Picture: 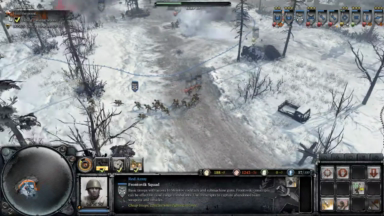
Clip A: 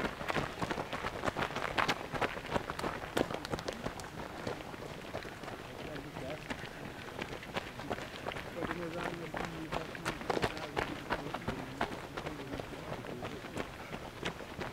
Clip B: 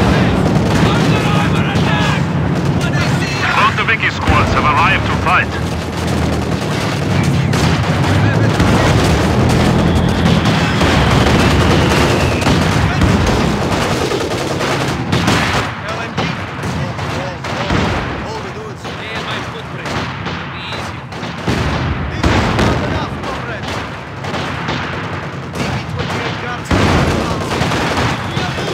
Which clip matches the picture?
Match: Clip B